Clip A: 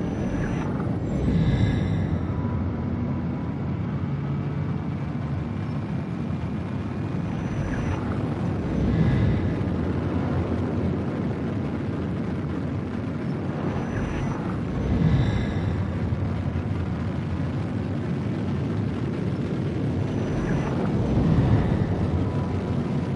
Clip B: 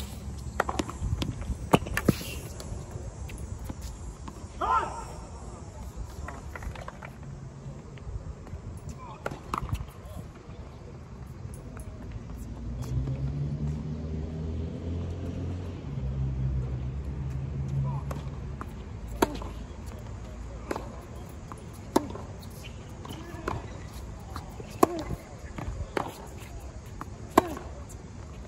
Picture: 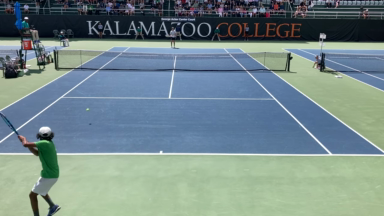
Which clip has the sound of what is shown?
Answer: B